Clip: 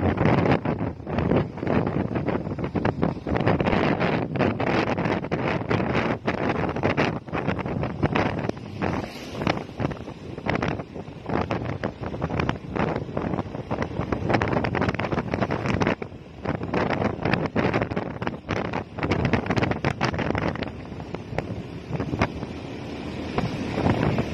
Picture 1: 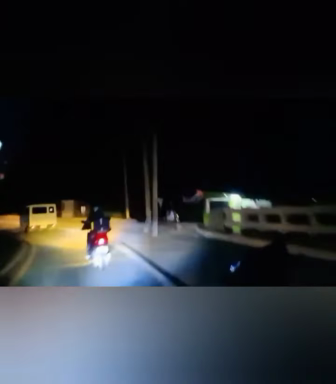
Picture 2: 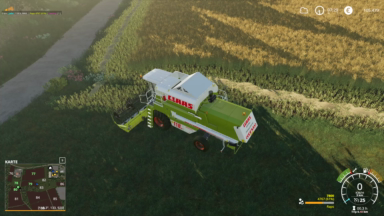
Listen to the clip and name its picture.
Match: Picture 1